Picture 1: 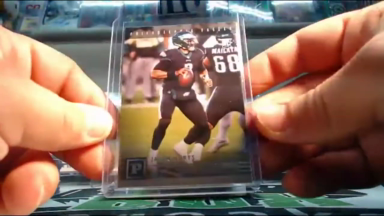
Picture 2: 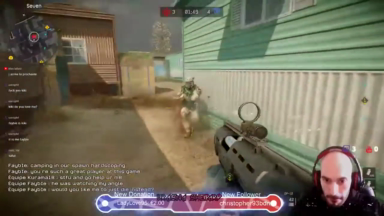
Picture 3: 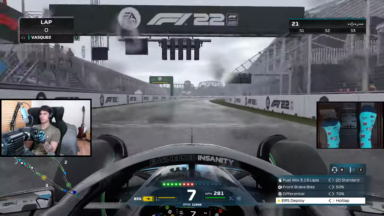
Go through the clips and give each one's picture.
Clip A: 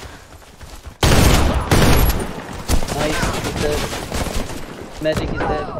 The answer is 2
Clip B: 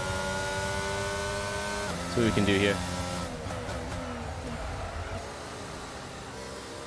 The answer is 3